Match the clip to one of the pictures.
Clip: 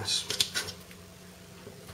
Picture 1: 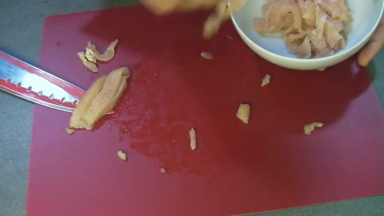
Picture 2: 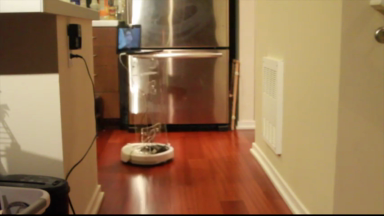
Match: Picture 1